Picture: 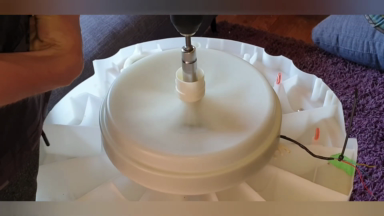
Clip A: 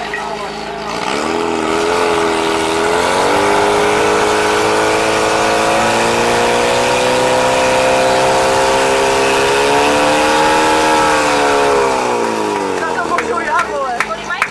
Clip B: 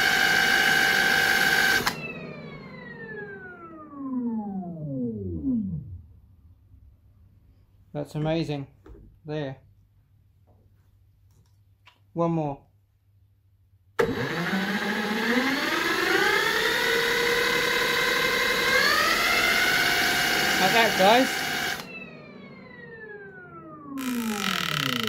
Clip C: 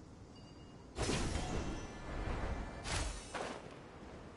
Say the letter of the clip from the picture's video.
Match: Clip B